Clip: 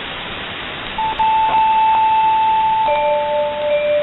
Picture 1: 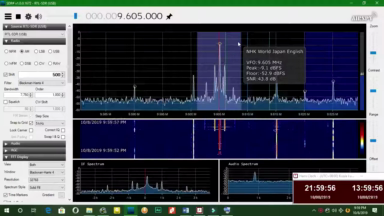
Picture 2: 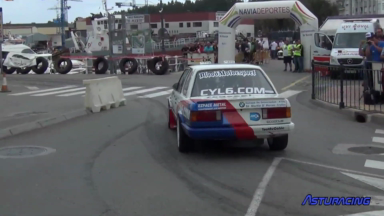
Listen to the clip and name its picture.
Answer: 1